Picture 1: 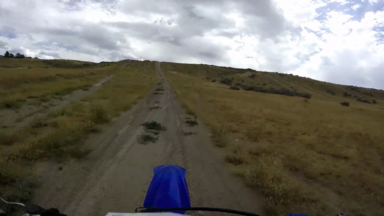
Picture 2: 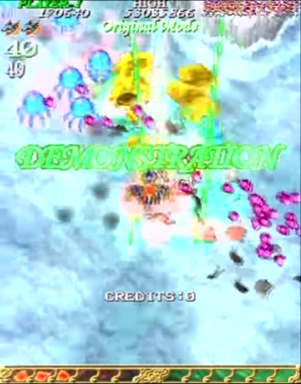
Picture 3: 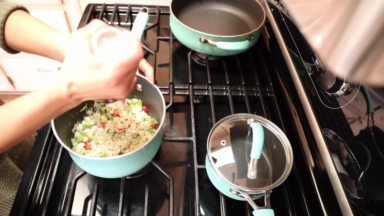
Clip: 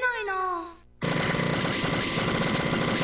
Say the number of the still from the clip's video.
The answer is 2